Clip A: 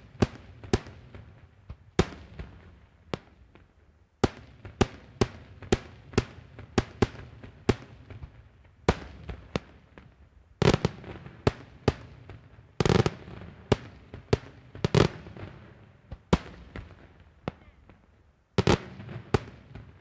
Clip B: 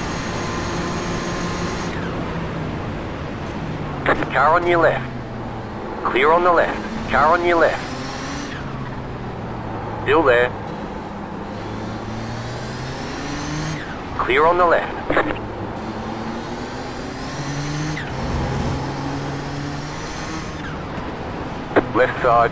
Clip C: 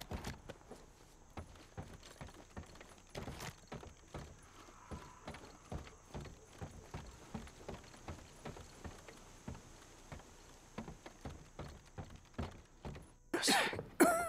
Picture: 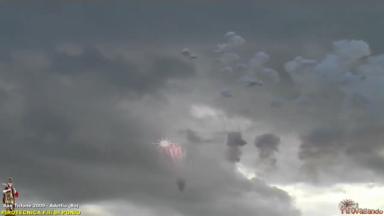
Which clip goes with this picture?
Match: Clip A